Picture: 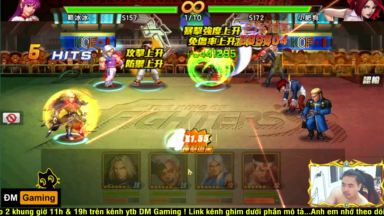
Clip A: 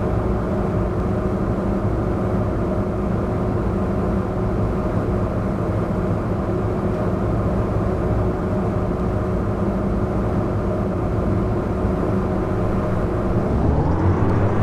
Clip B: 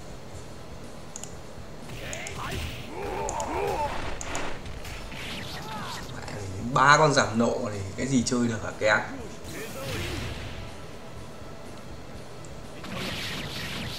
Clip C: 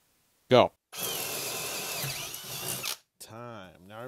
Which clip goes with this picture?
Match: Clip B